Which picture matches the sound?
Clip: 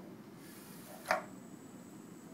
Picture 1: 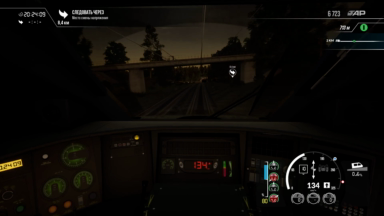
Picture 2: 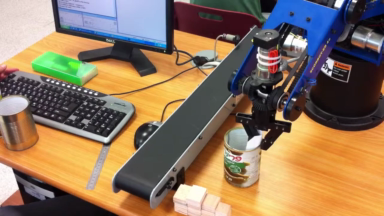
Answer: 2